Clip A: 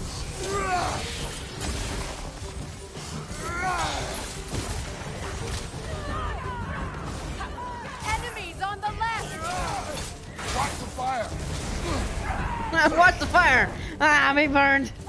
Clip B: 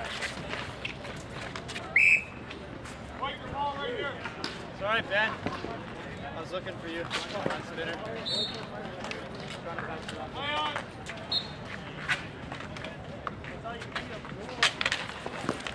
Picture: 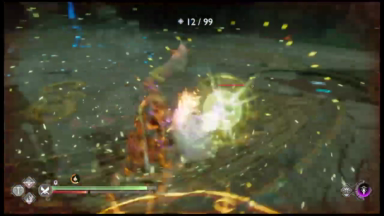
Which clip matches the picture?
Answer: A